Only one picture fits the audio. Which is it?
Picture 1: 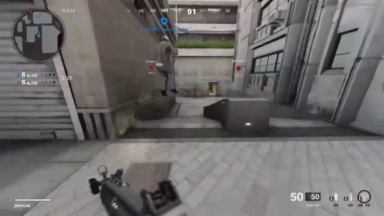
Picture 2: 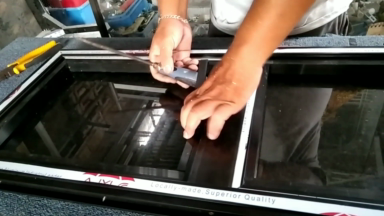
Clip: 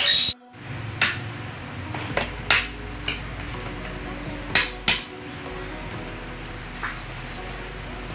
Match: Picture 2